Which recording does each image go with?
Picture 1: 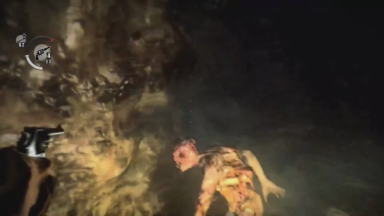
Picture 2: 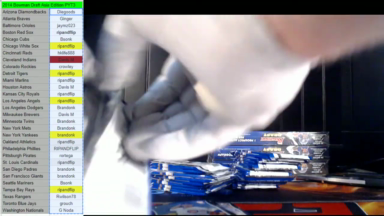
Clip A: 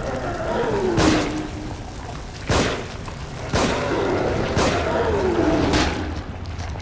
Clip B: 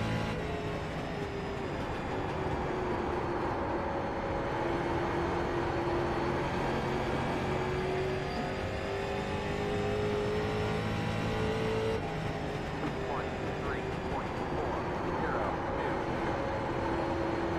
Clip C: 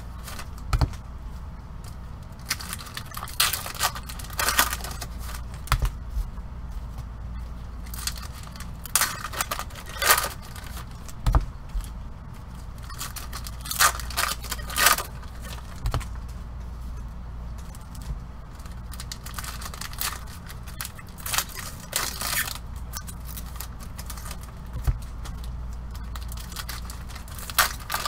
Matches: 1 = A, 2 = C